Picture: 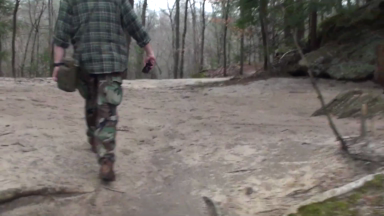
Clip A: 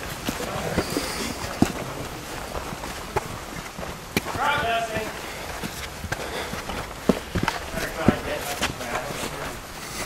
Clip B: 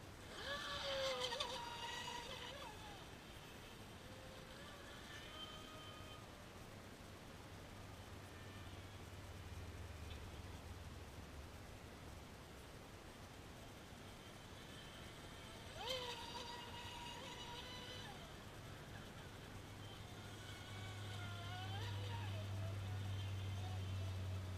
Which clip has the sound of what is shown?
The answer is A